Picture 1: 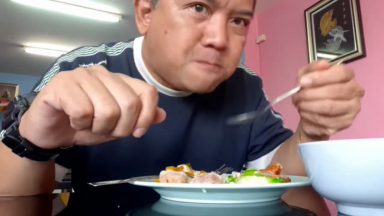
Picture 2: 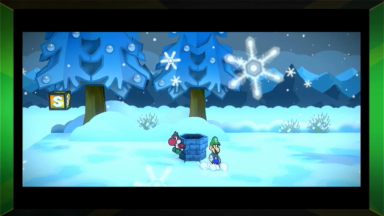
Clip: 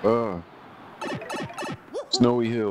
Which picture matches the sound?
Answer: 2